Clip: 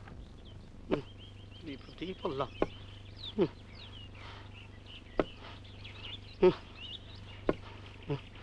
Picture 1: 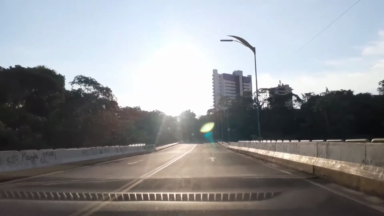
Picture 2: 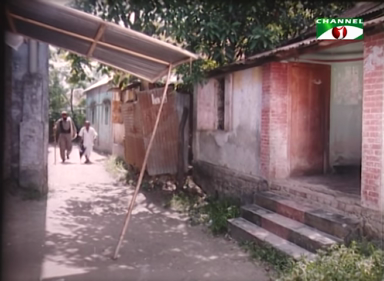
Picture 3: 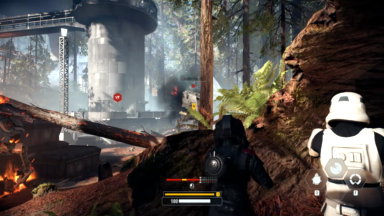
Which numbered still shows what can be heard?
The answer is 2